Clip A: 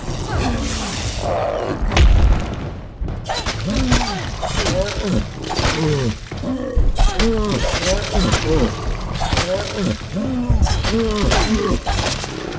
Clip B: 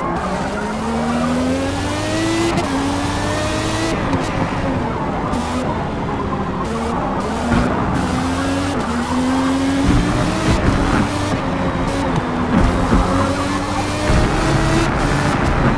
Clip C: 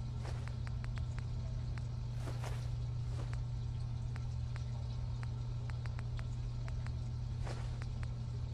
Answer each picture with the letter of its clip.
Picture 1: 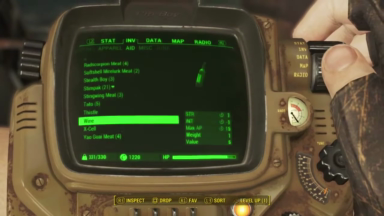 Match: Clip C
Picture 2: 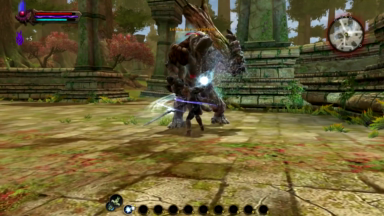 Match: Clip A